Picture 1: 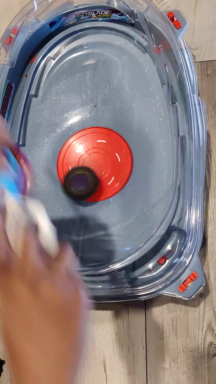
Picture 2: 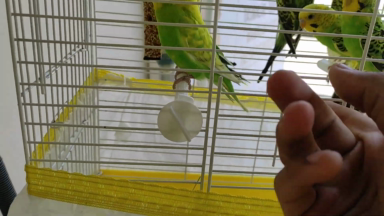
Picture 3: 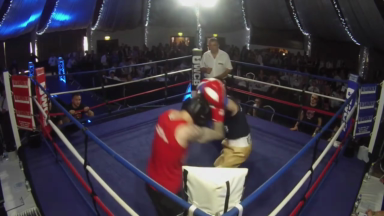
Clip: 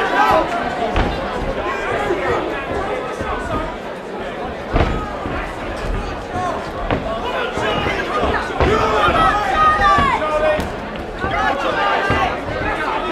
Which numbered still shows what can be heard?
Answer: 3